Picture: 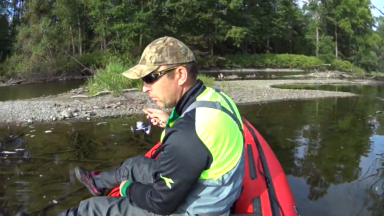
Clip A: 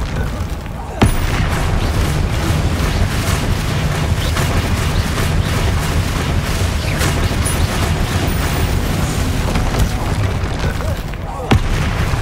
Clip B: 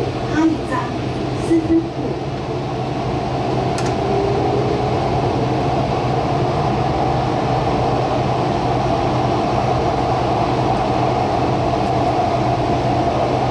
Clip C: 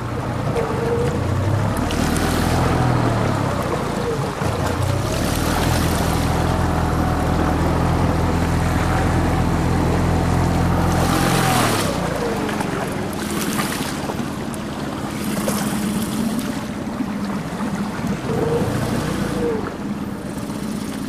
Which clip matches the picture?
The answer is C